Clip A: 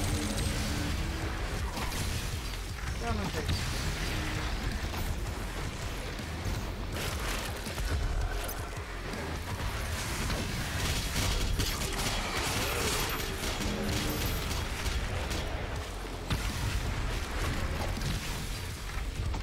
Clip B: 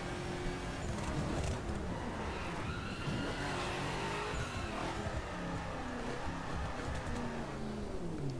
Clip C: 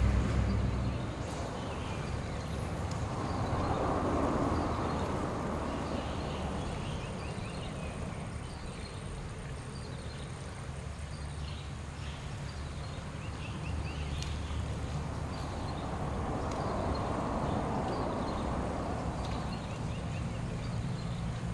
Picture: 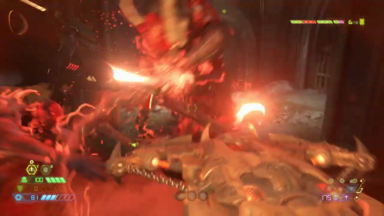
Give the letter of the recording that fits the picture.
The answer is A